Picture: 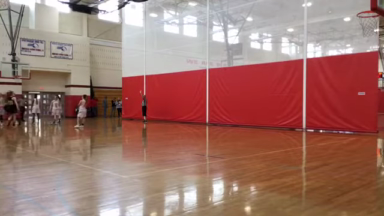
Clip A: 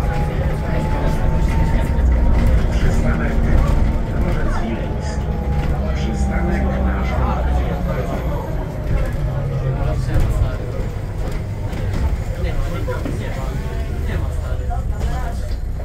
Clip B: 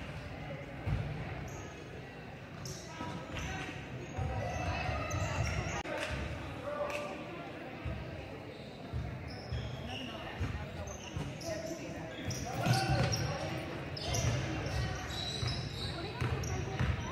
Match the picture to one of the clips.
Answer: B